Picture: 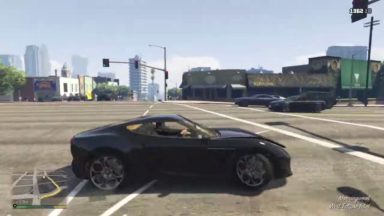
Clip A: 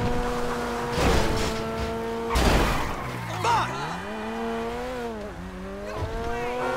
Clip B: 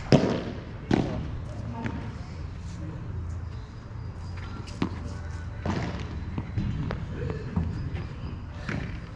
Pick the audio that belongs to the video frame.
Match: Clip A